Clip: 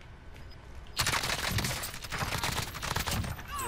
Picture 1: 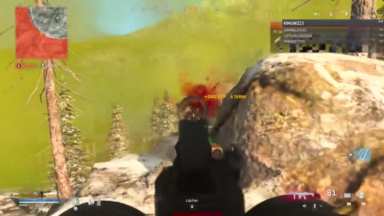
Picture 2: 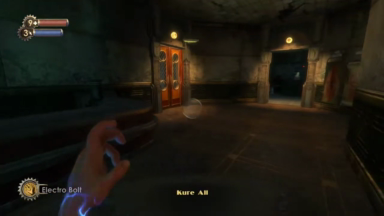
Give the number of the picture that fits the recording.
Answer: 1